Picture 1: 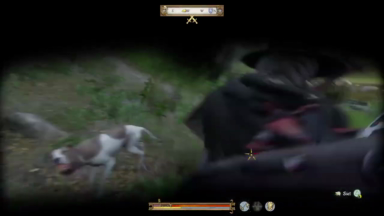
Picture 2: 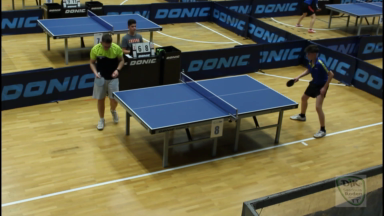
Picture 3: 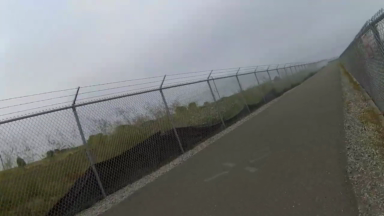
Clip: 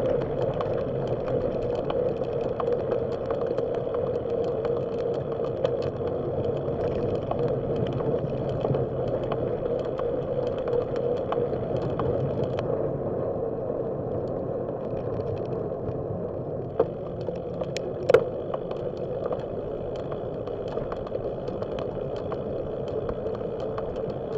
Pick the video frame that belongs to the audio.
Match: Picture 3